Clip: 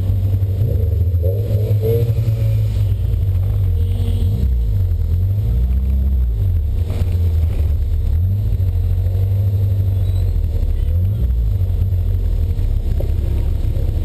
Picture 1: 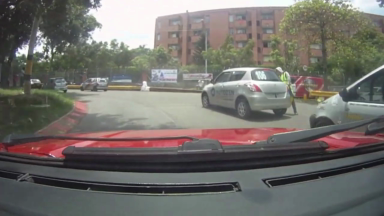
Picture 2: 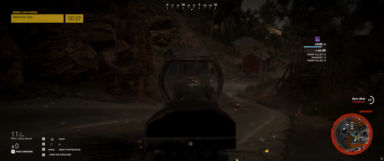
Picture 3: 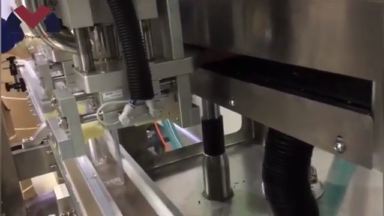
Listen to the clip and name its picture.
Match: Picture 1